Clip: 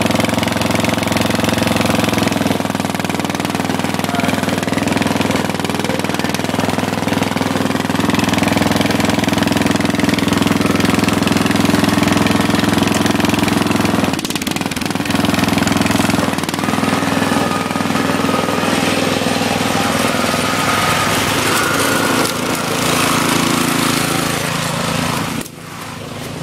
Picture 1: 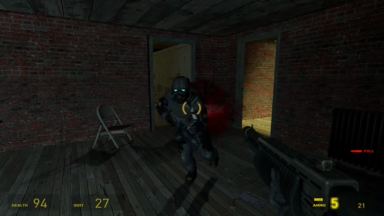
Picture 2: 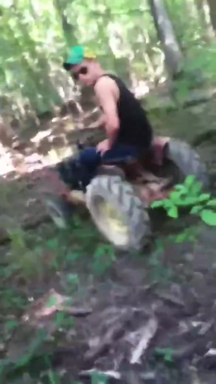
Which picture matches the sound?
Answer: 2